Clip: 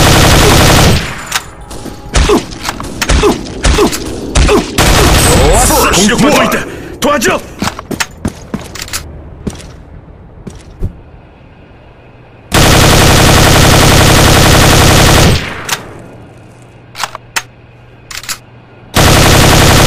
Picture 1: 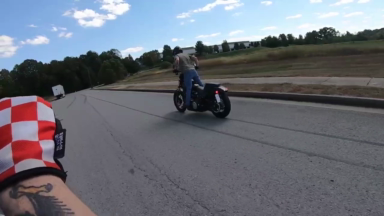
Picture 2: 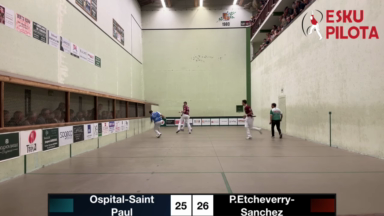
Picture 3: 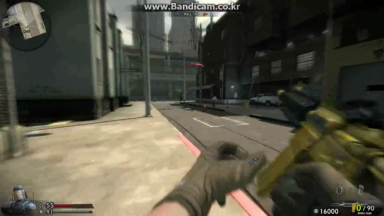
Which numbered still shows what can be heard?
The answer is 3